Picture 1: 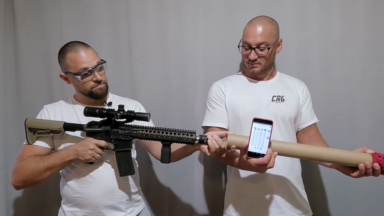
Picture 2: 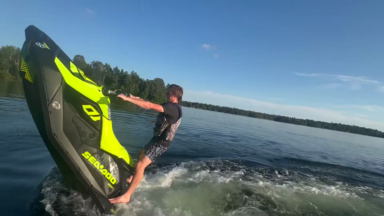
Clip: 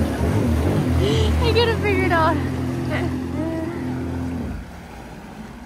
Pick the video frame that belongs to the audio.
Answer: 2